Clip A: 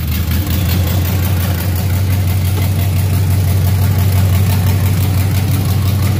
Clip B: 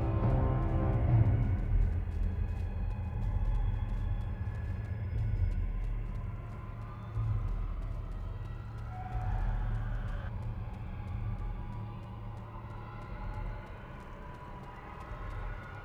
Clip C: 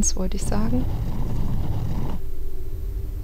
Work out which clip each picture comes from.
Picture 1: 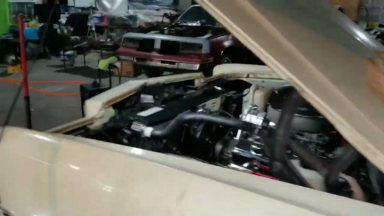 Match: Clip A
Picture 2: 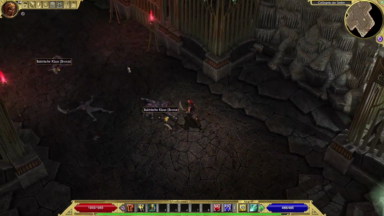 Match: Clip B